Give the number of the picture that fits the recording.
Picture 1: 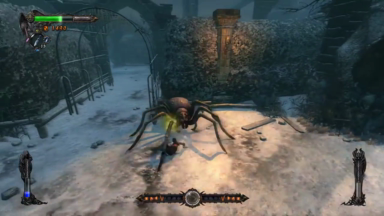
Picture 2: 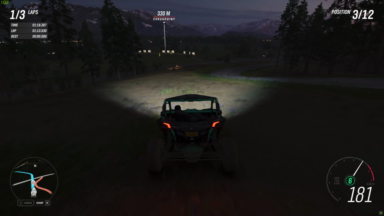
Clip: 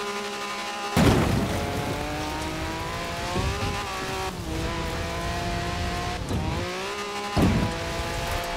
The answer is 2